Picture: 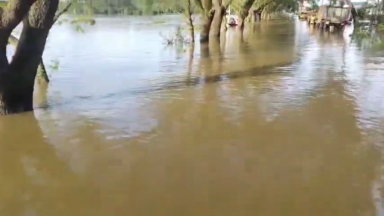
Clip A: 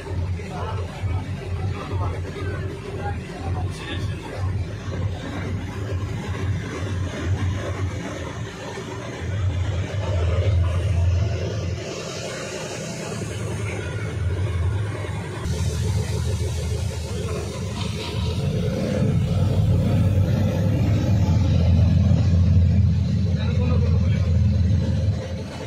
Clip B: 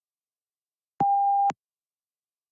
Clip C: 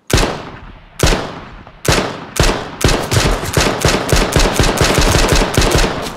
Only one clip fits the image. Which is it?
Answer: A